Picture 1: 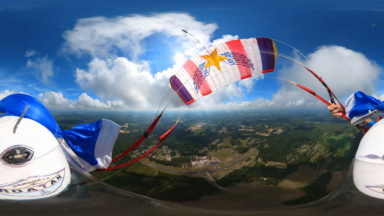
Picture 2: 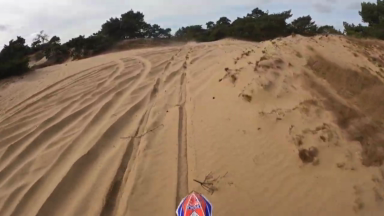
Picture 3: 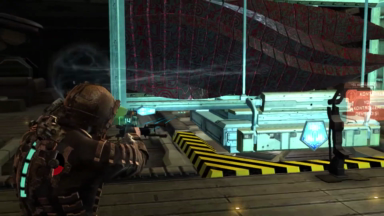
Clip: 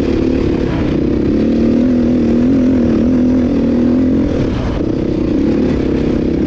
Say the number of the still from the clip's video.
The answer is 2